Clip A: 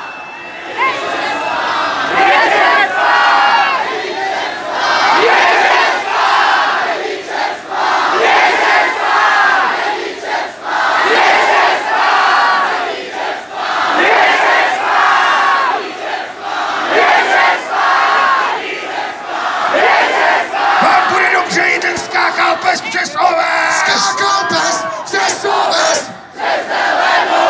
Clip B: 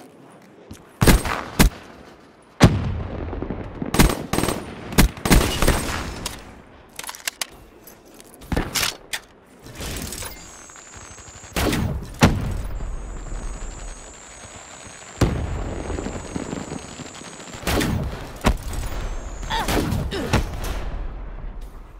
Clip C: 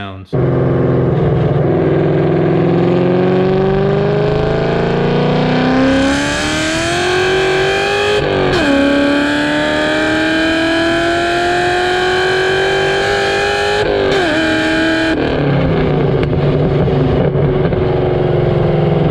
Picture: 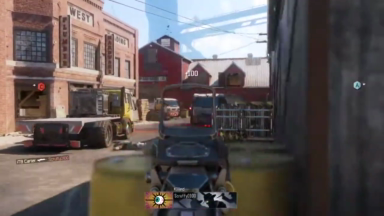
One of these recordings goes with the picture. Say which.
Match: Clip B